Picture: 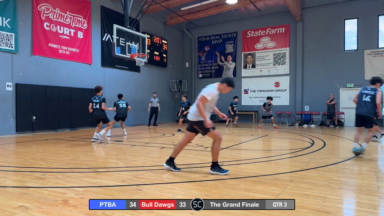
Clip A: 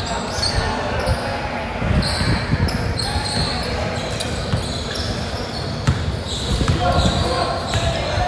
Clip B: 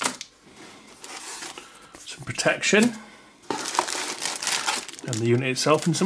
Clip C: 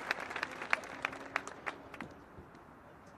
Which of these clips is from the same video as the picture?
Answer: A